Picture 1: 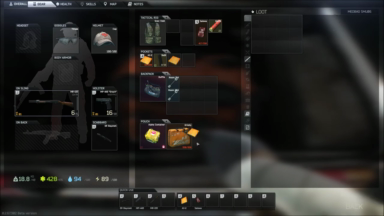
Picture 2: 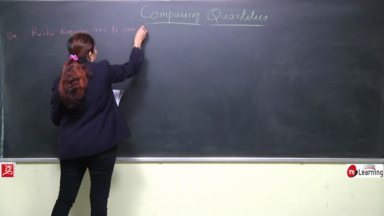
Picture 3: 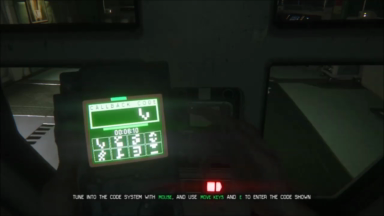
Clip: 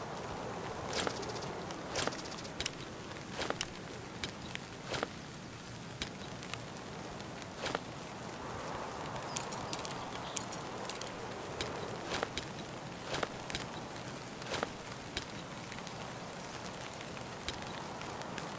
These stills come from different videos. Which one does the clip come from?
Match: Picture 1